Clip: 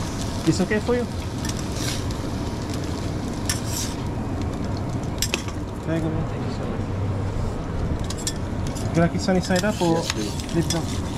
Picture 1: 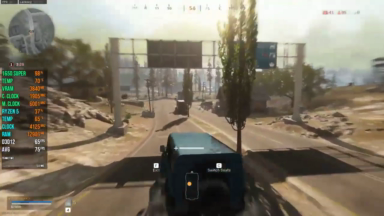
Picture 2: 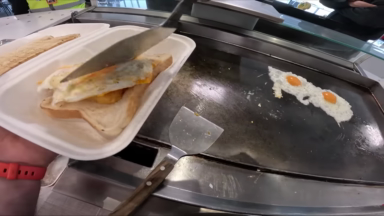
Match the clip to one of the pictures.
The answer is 2